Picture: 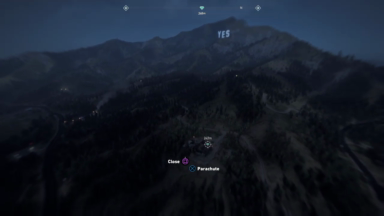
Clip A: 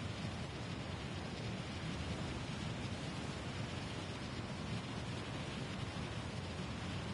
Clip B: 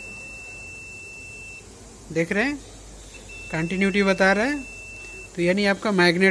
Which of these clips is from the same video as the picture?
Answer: A